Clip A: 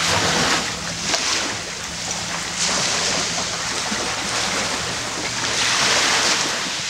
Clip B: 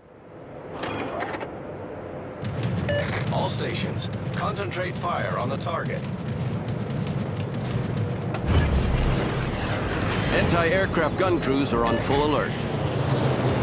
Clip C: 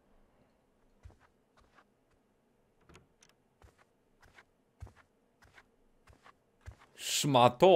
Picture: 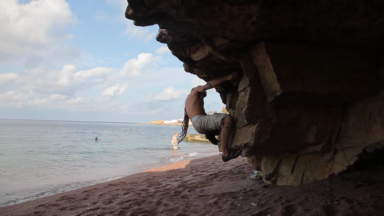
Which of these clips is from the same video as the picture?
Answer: A